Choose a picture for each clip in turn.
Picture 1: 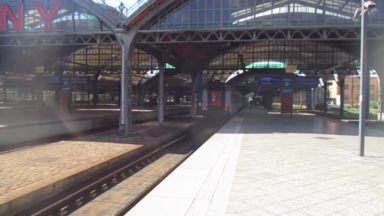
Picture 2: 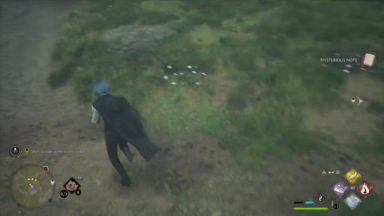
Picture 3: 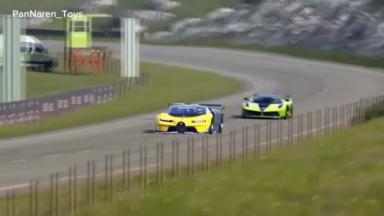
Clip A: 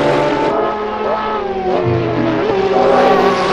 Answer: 3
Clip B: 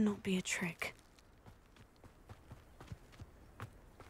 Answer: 2